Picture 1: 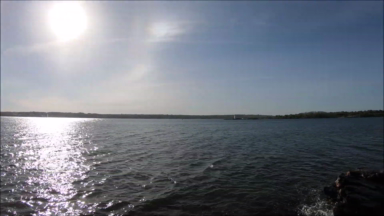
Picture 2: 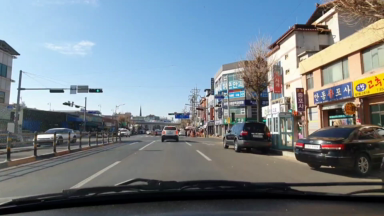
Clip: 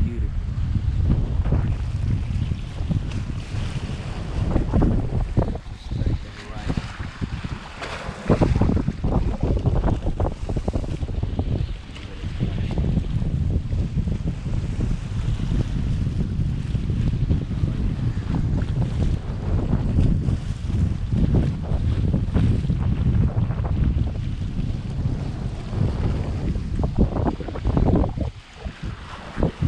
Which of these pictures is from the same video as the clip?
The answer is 1